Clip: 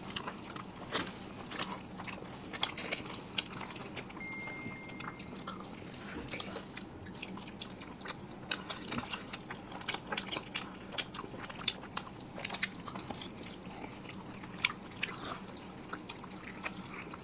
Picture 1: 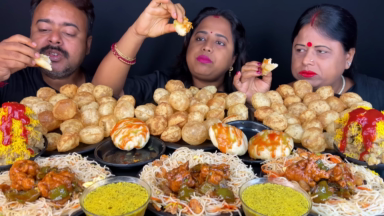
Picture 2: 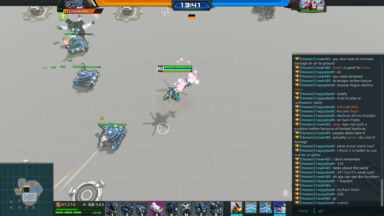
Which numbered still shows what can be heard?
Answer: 1